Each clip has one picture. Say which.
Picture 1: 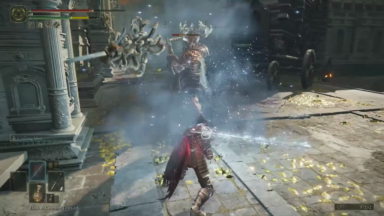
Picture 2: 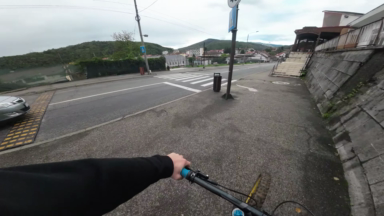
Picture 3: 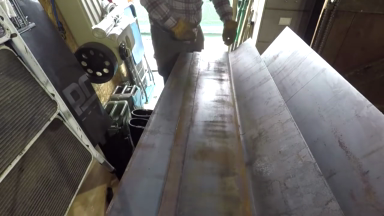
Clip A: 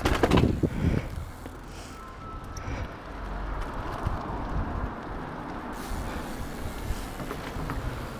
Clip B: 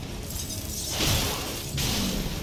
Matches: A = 2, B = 1